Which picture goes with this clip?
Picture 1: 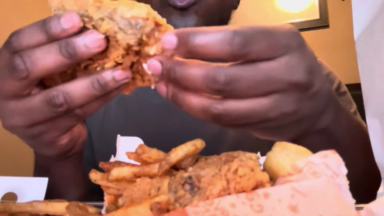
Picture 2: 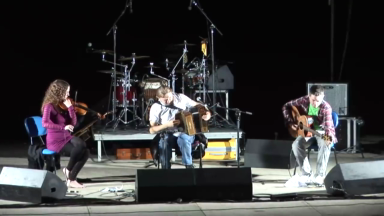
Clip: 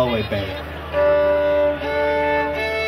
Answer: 2